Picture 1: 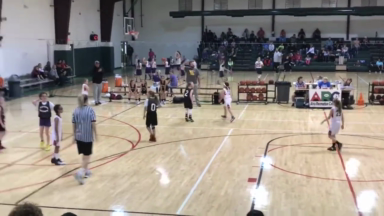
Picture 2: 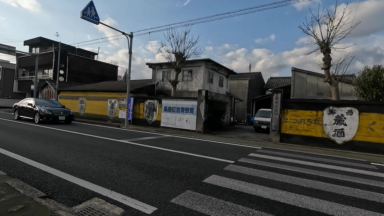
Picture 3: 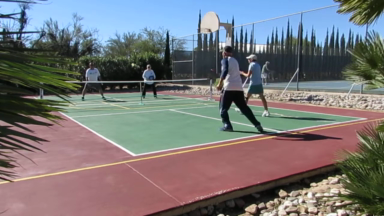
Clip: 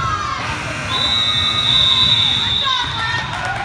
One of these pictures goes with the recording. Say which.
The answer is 1